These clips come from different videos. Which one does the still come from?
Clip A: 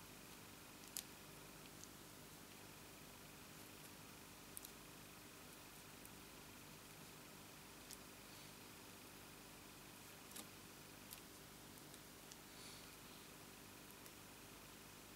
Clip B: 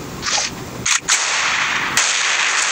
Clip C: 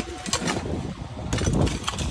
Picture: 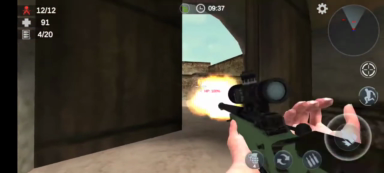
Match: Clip B